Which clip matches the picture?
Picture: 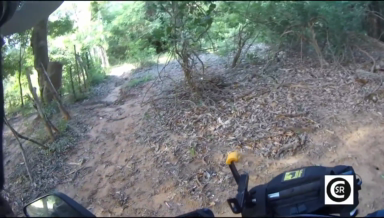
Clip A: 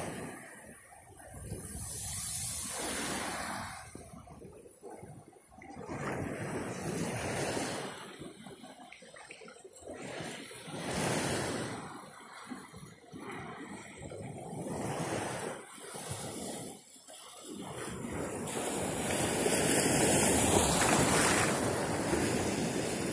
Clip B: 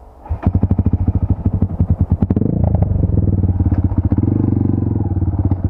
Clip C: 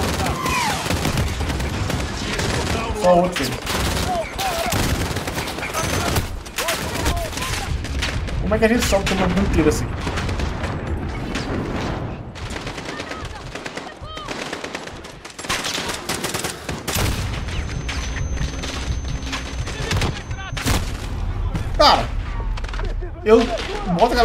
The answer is B